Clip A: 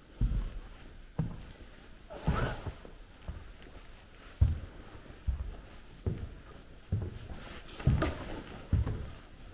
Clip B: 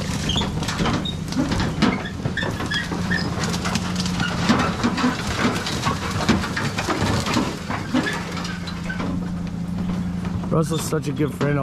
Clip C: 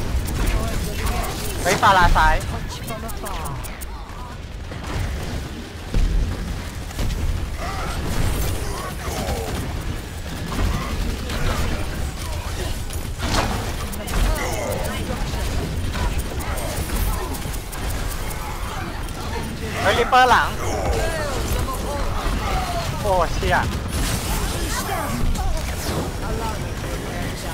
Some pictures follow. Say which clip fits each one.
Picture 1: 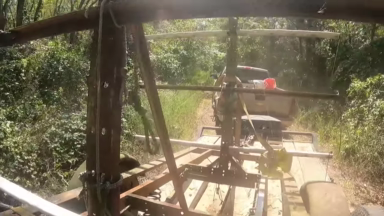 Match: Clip B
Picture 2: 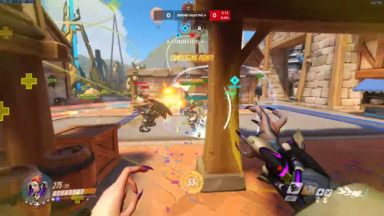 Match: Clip C